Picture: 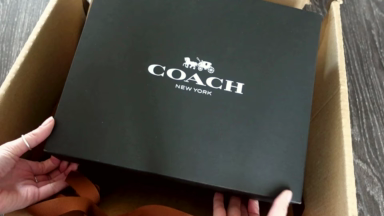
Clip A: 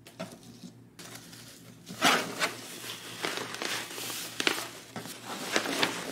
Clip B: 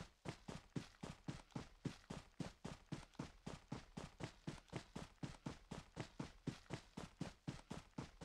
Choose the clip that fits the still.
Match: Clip A